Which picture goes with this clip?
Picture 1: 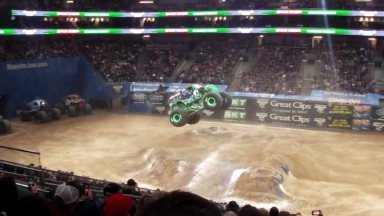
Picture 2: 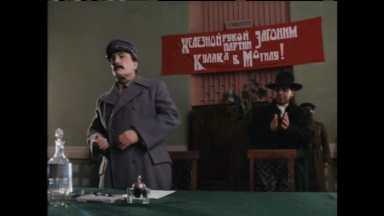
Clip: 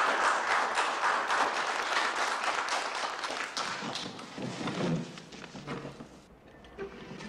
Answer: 2